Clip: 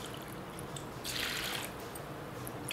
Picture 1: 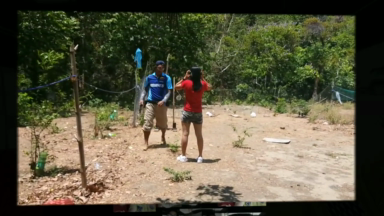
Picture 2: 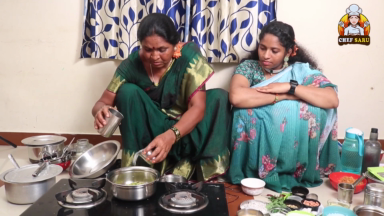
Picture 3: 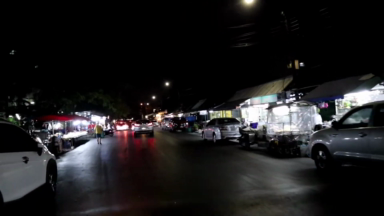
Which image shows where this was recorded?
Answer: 2